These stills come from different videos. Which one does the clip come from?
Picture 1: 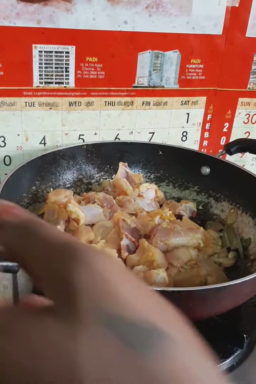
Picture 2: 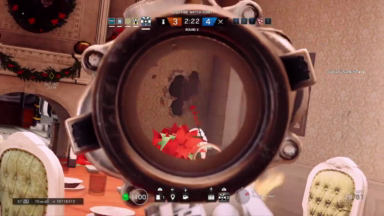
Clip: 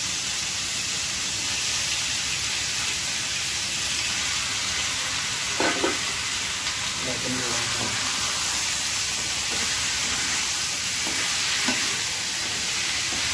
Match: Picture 1